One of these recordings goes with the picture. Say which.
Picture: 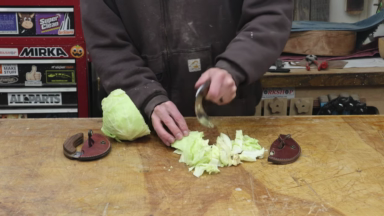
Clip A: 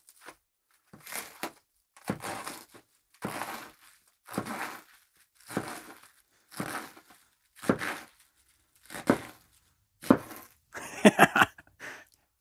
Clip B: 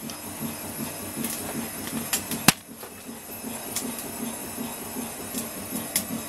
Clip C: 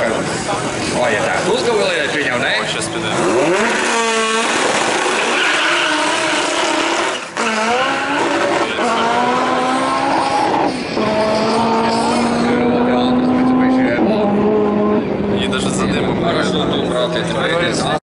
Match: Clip A